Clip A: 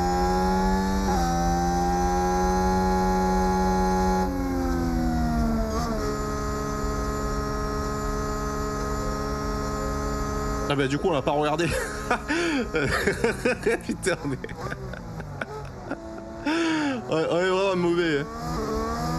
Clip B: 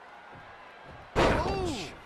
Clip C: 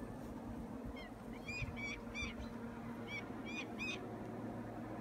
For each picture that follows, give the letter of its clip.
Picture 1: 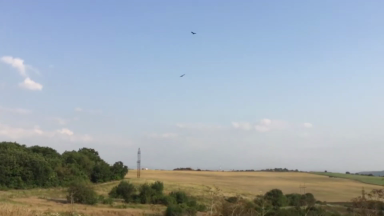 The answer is C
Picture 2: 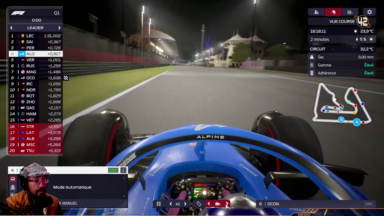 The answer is A